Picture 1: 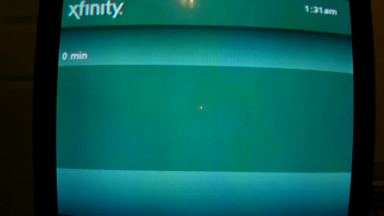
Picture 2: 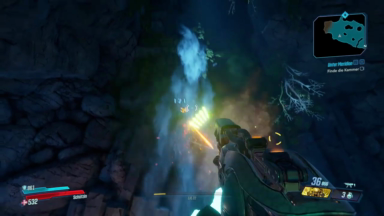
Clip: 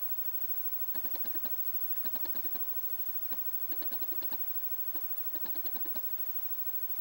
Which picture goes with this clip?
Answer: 1